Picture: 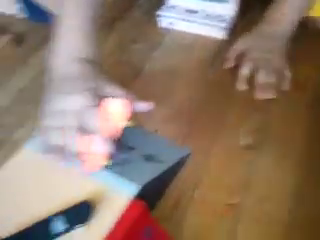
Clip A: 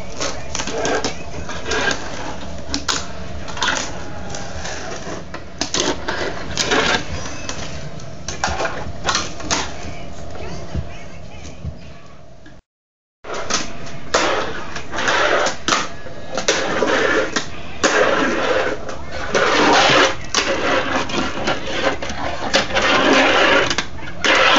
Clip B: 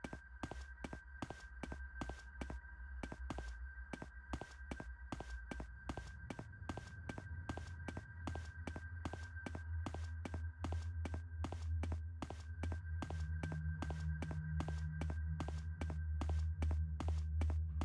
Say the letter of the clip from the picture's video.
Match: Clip A